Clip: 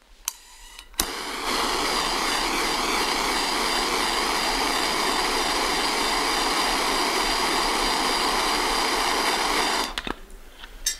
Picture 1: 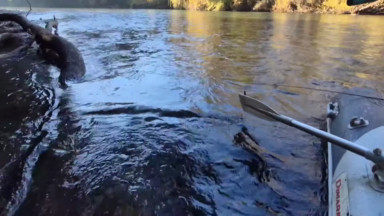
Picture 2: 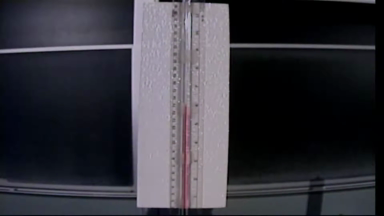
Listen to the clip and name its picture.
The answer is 2